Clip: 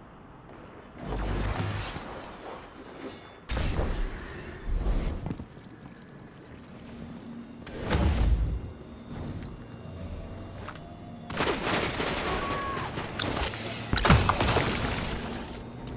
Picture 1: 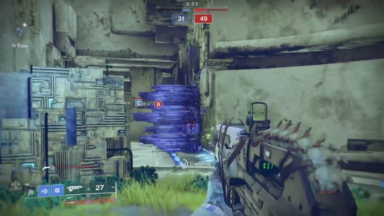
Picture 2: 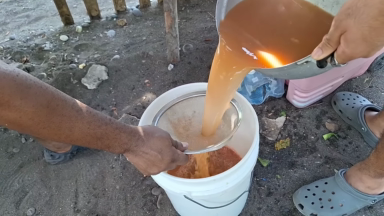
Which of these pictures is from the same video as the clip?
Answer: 1